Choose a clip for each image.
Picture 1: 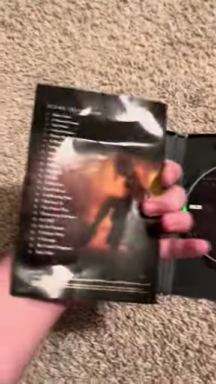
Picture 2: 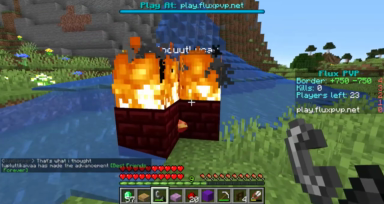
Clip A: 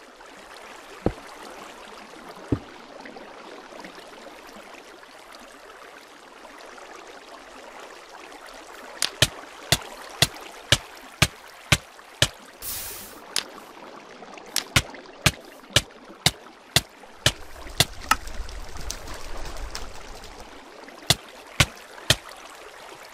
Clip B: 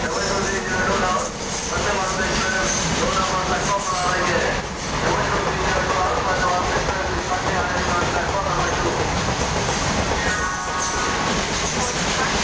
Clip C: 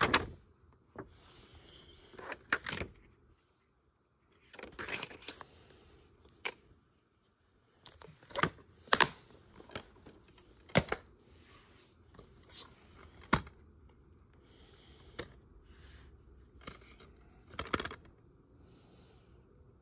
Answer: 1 C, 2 A